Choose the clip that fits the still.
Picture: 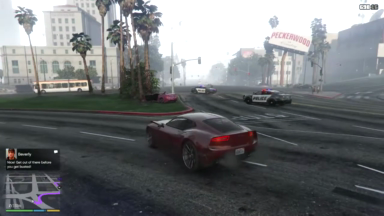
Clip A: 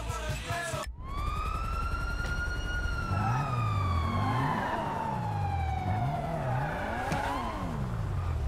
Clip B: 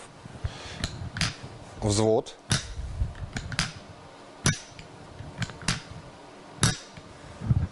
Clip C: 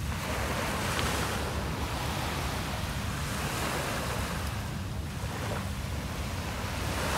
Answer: A